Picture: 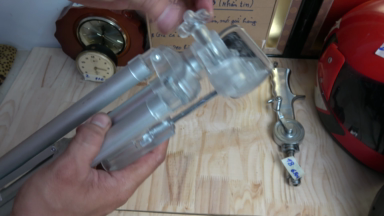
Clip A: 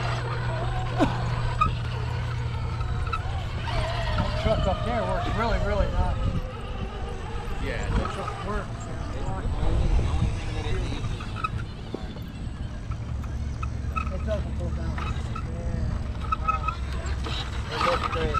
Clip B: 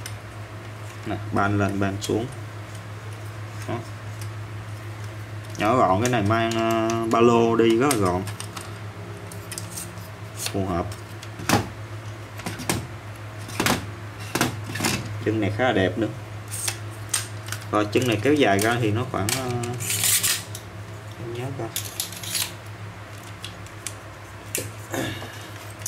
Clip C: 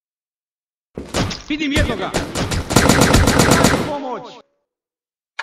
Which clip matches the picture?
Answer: B